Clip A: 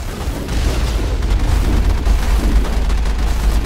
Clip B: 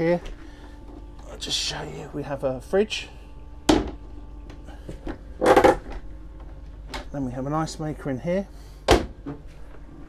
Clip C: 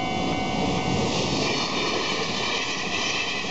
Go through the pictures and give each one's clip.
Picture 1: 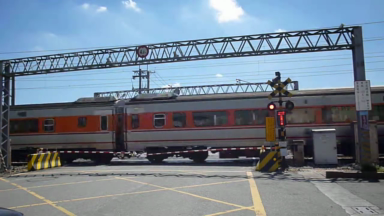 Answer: C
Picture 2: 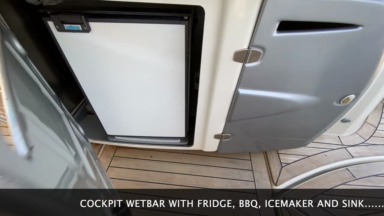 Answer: B